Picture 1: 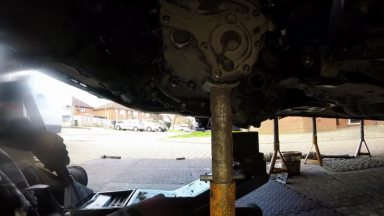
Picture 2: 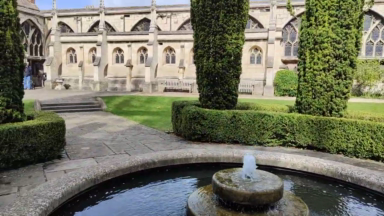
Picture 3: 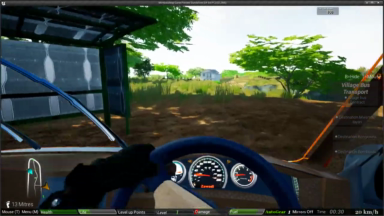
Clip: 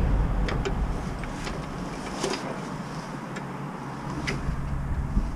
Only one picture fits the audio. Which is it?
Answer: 1